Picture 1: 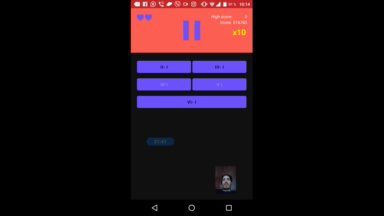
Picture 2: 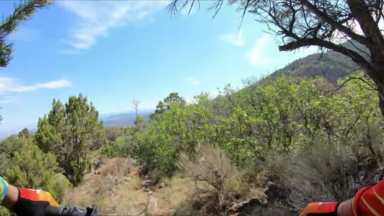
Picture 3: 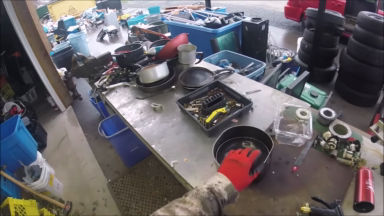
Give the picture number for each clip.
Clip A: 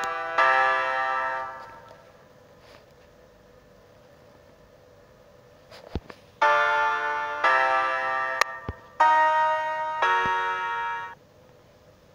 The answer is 1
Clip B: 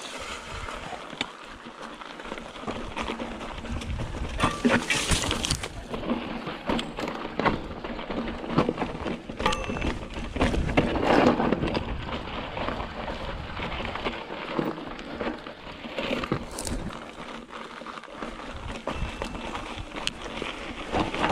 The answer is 2